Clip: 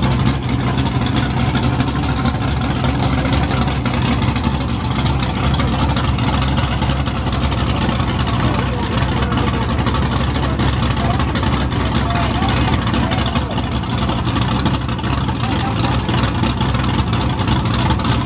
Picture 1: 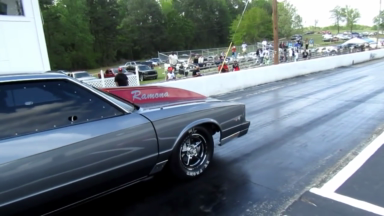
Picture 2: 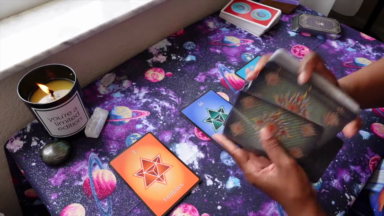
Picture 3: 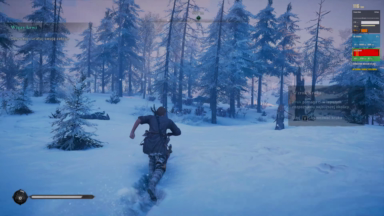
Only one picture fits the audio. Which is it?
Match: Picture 1